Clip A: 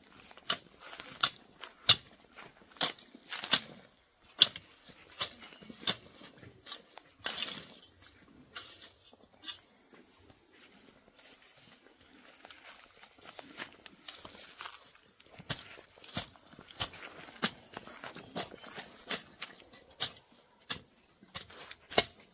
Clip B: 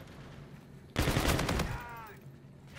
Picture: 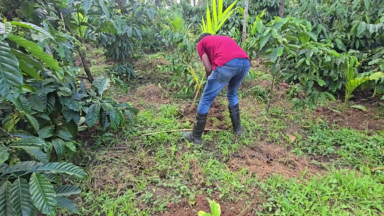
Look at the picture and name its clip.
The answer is A